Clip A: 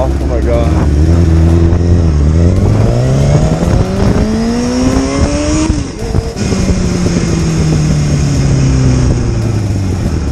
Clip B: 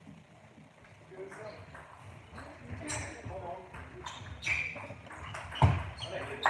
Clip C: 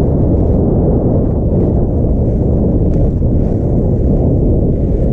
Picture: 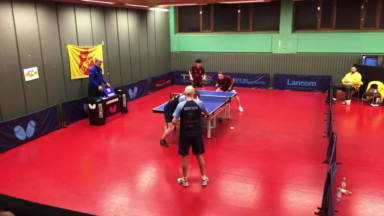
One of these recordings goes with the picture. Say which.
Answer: B